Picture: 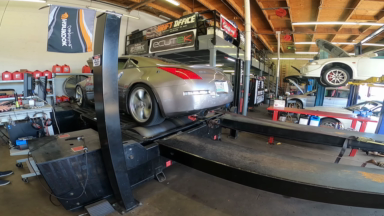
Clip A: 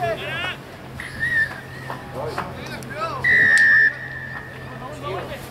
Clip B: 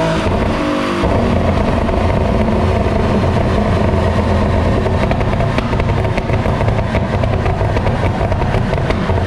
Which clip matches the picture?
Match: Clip B